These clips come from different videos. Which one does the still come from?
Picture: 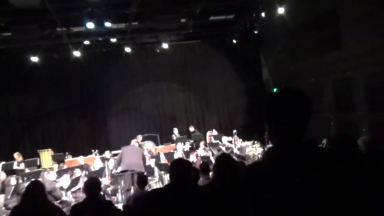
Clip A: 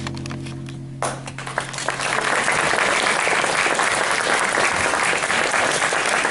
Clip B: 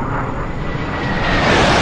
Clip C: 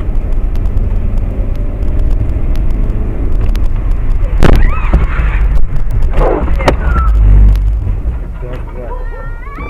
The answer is A